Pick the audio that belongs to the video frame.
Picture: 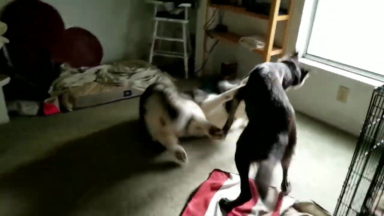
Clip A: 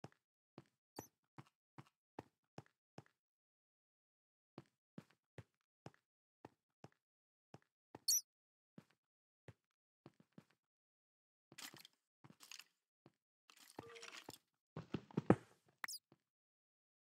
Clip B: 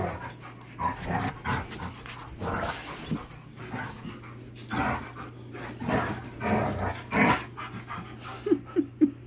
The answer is B